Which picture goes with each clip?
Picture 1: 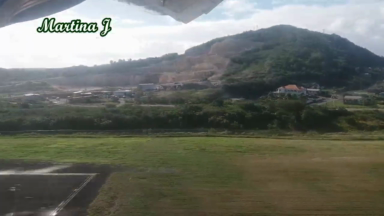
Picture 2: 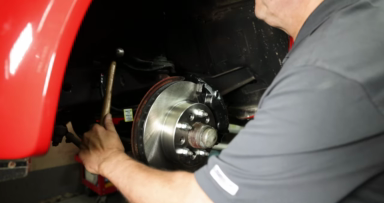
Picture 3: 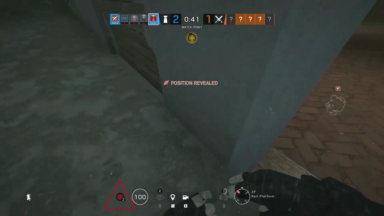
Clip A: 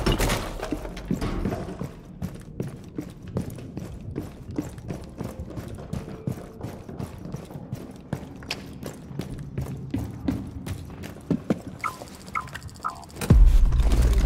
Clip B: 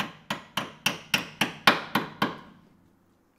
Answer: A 3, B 2